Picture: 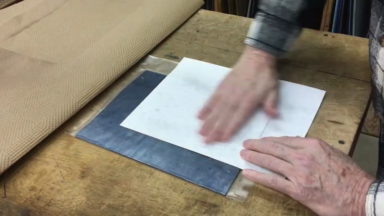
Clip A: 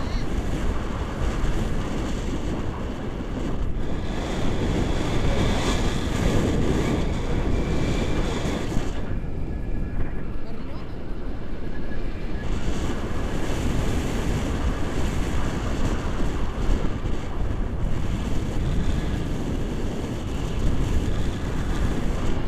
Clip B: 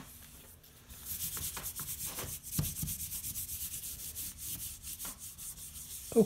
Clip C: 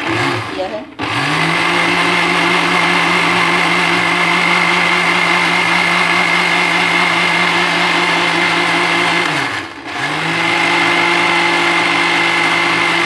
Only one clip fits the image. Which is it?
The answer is B